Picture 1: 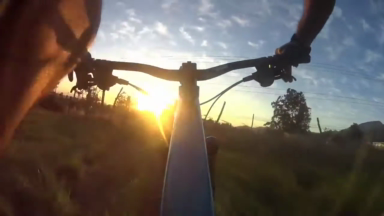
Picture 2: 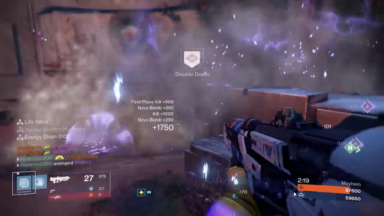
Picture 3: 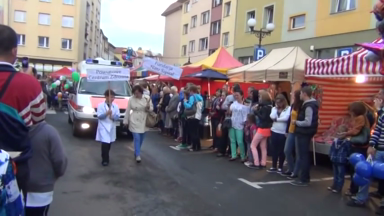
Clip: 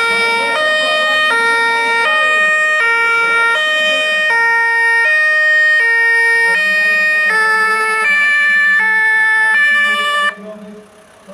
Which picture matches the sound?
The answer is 3